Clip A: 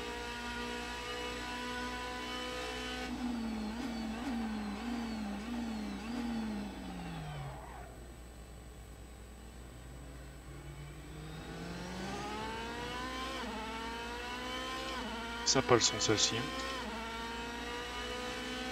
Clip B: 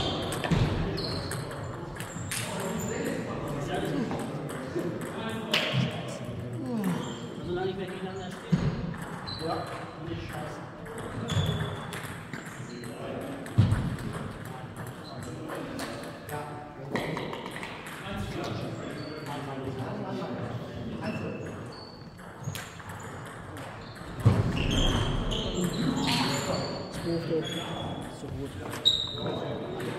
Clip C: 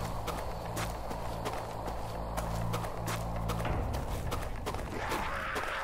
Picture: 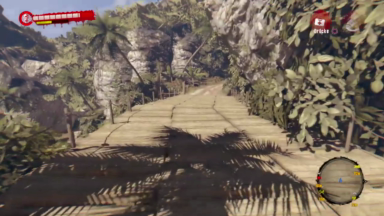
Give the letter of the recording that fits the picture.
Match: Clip C